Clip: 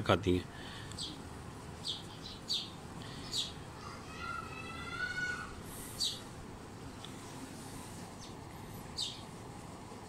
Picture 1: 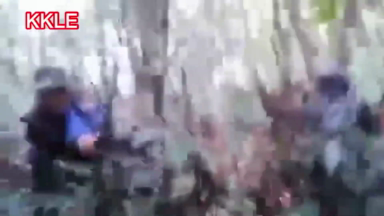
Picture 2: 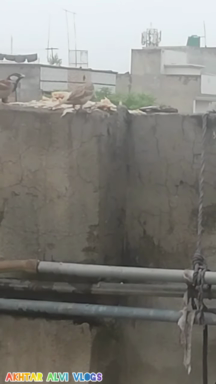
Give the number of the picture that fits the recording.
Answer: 2